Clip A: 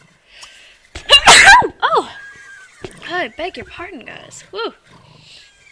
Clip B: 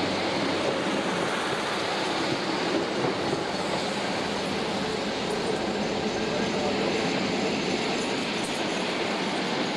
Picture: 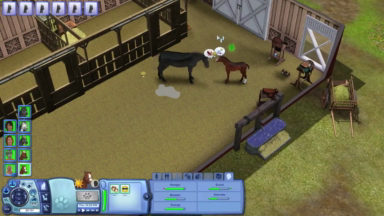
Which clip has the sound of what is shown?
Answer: A